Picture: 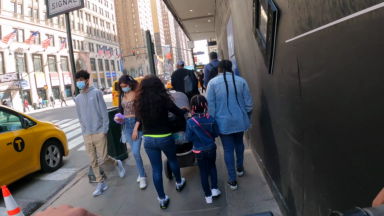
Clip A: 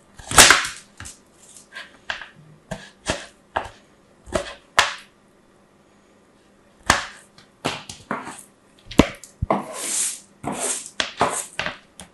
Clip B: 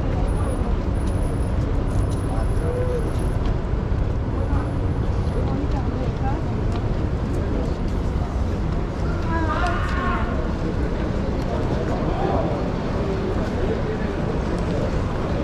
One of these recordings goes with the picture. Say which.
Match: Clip B